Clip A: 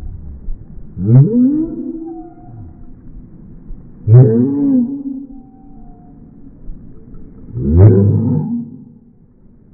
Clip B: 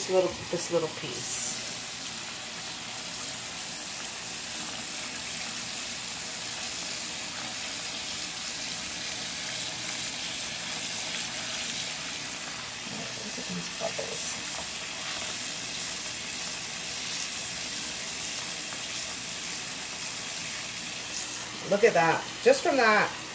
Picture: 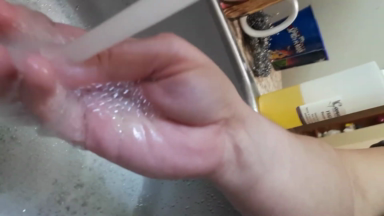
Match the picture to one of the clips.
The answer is B